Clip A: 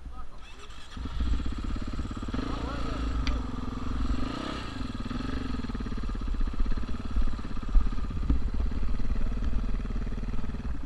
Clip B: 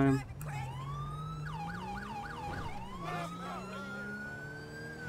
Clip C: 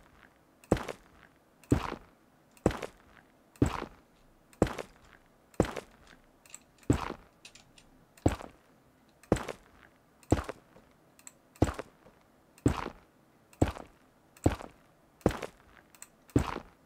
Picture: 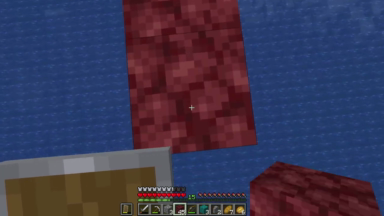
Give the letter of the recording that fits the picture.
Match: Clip C